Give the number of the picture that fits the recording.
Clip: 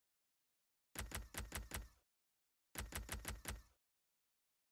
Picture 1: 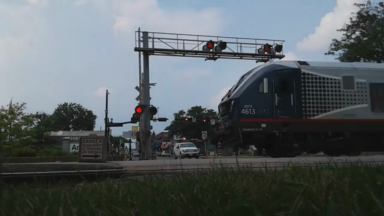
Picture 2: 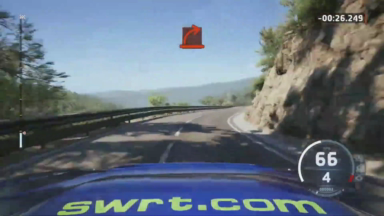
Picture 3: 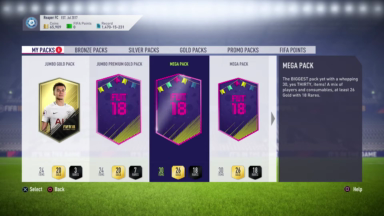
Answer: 3